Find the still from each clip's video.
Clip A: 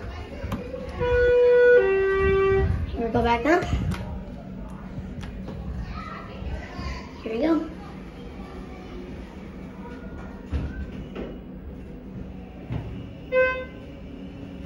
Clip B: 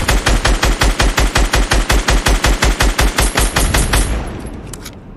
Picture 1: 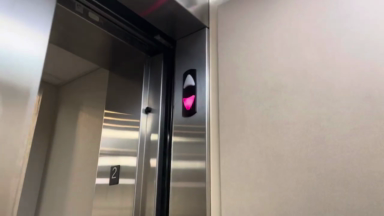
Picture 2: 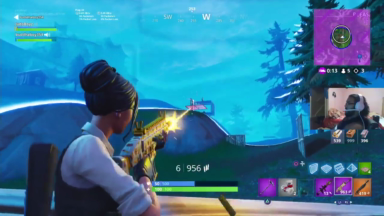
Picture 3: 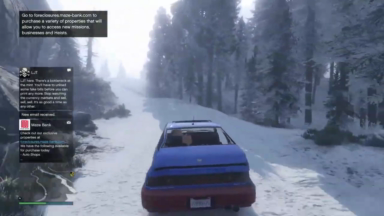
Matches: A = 1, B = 2